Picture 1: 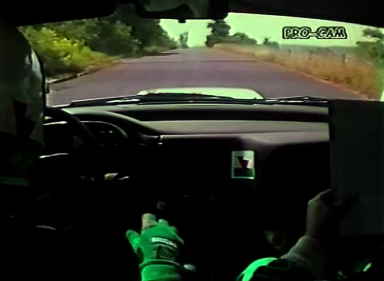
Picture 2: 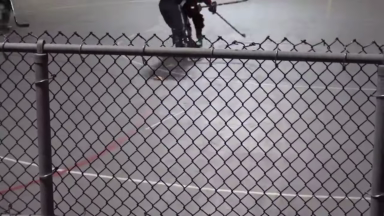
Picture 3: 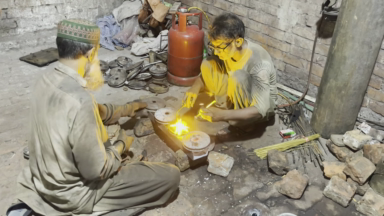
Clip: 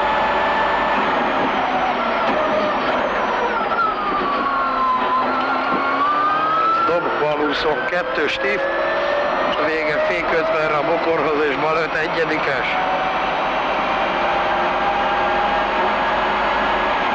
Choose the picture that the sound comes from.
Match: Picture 1